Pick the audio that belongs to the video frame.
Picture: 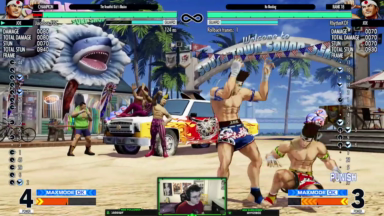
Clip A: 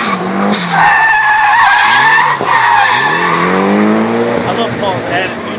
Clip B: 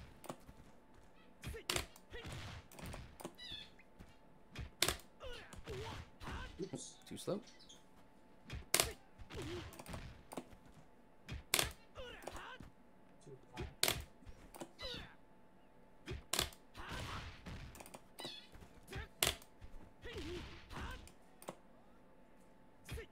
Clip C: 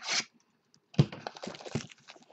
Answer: B